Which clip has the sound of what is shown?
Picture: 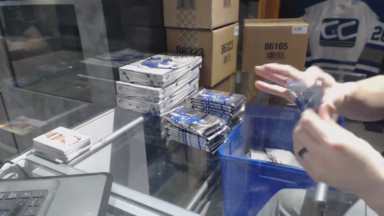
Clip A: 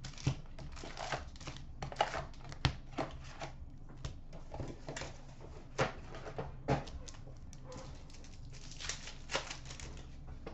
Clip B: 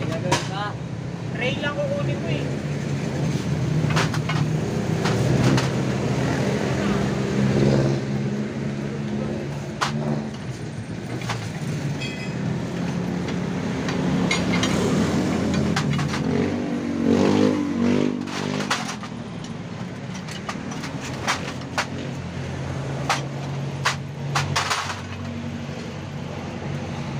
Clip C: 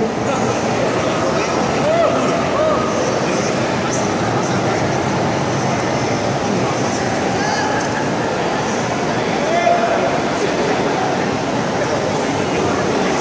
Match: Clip A